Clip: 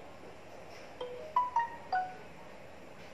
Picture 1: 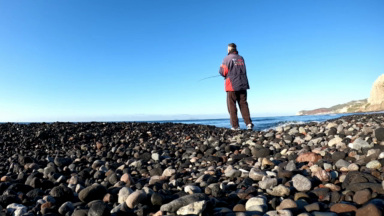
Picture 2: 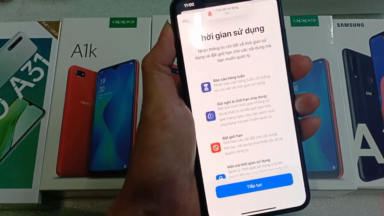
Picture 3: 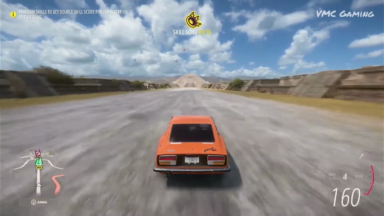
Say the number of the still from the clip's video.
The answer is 2